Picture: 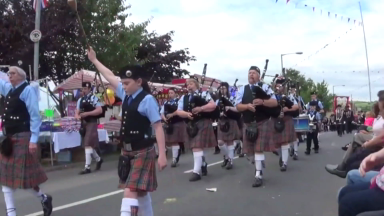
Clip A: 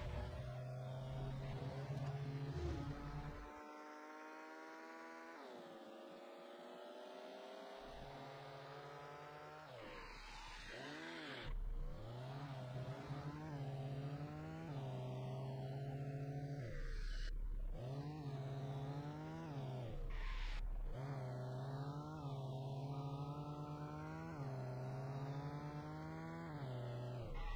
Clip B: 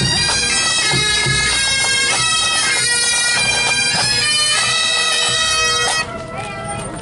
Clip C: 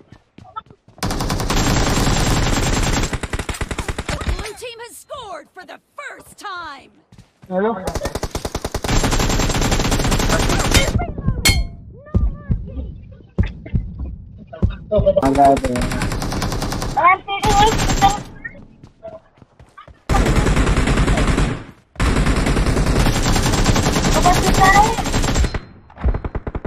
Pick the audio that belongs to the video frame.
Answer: B